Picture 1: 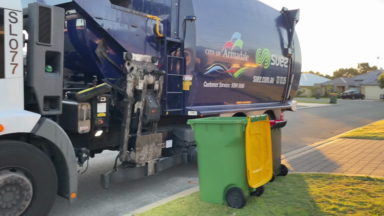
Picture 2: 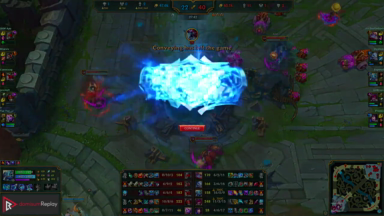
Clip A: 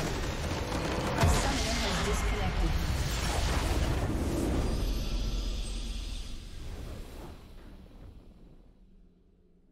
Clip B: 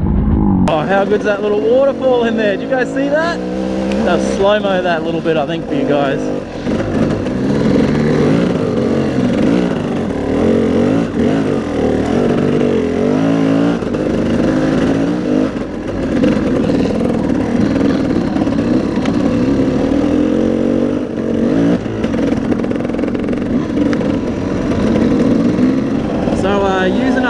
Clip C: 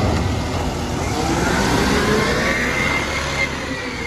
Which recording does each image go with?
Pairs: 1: C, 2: A